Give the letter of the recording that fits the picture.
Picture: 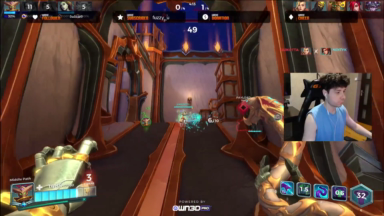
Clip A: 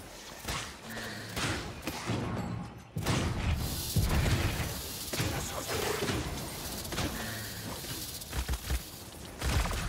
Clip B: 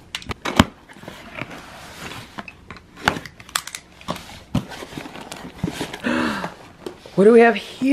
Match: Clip A